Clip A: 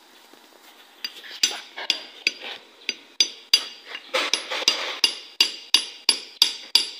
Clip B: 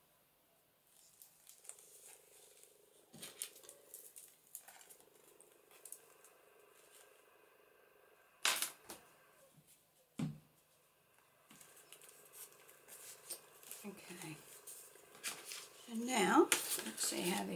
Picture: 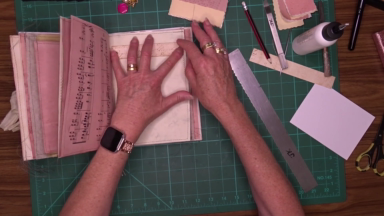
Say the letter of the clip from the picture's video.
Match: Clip B